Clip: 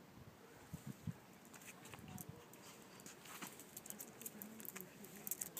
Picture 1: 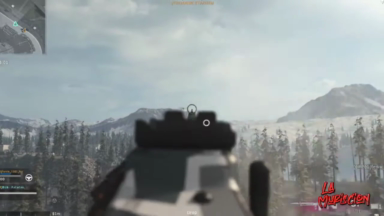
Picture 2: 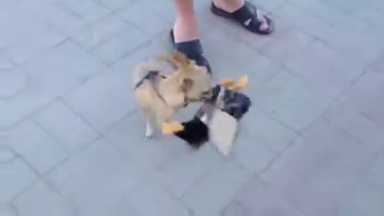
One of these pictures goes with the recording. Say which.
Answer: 2